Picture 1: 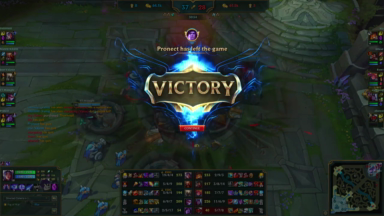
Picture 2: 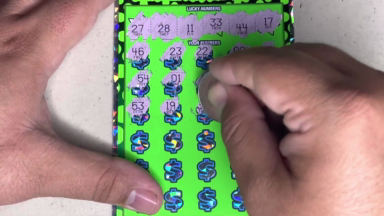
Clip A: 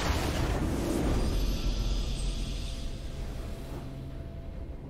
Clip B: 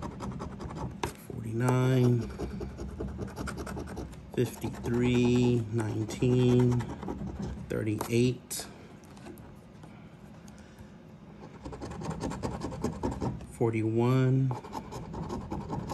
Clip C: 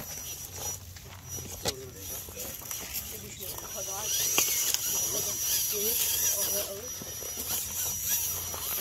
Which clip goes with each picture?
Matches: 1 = A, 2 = B